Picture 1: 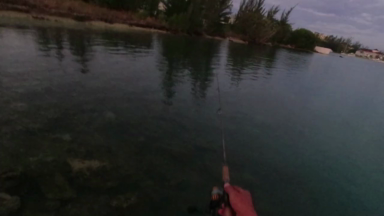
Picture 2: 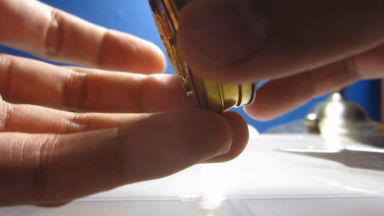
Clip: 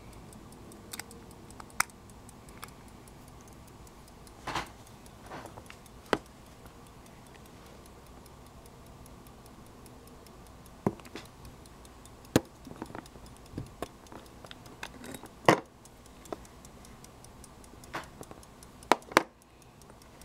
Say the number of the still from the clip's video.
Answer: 2